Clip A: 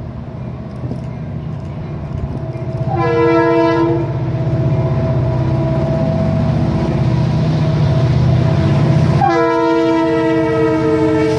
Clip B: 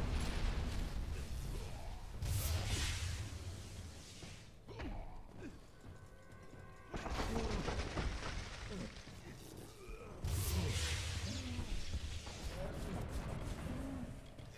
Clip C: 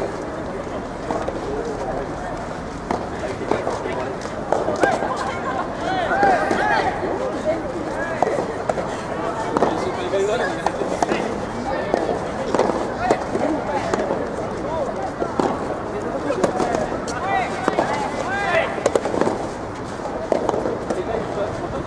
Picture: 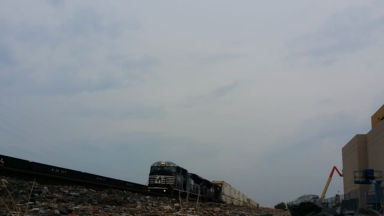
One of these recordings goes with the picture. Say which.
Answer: A